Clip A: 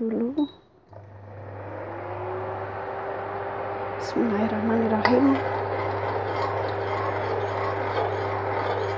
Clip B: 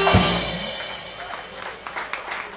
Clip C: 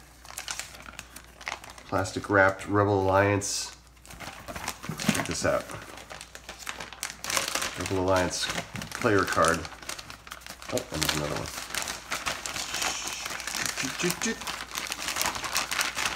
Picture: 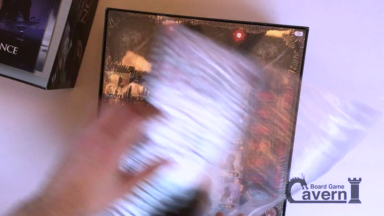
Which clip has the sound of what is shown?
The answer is C